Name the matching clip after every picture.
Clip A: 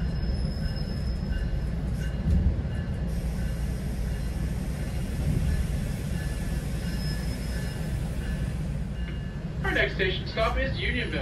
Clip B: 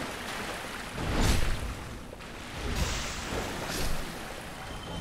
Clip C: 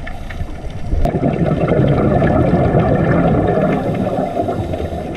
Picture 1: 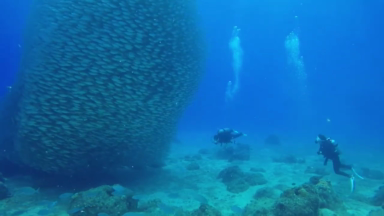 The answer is C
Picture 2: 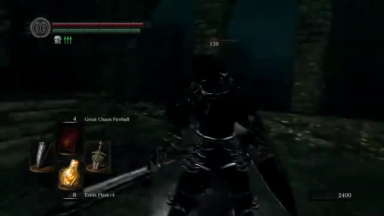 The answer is B